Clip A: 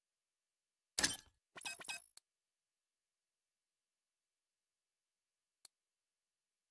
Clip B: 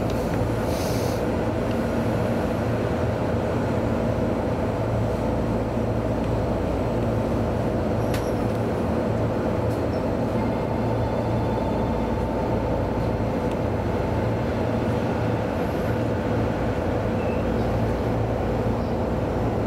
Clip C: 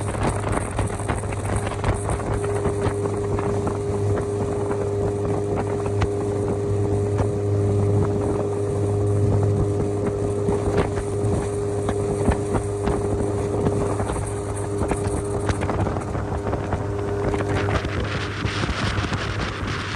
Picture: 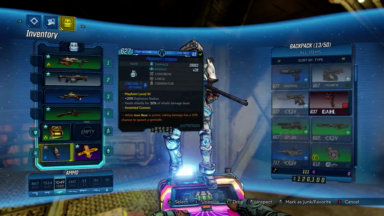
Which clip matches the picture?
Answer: A